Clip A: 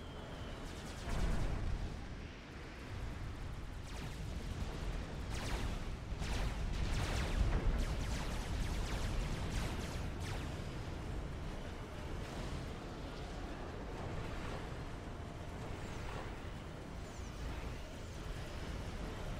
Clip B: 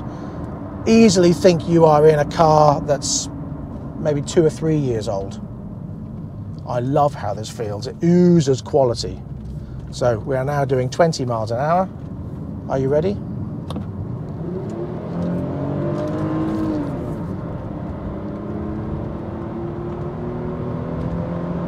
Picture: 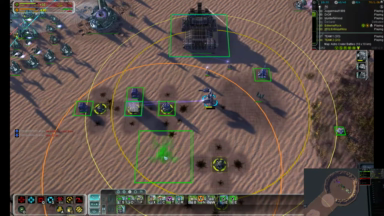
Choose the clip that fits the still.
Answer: A